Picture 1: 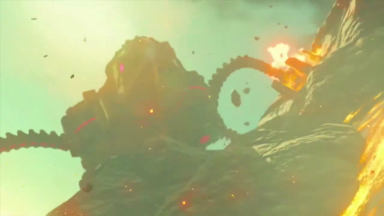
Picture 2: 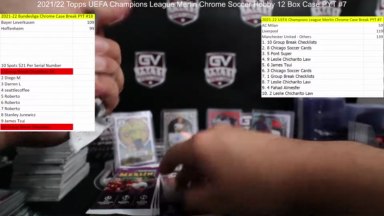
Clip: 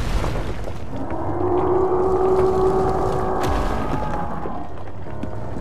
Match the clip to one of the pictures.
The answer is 1